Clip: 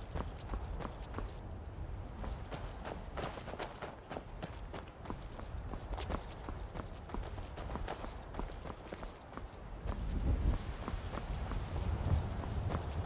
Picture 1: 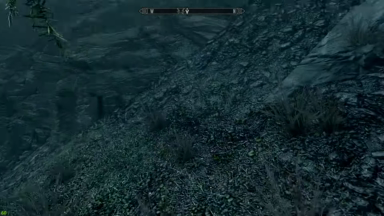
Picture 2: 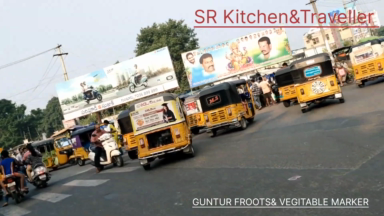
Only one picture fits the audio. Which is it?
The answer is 1